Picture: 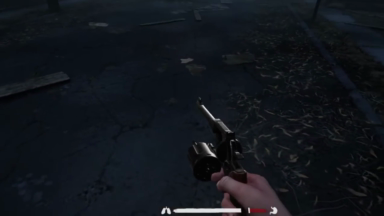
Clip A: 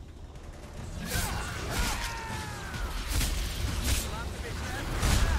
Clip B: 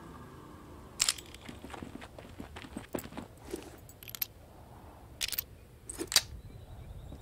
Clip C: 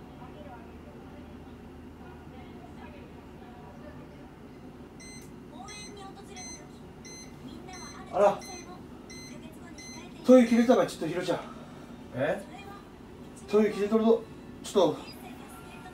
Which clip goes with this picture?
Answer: B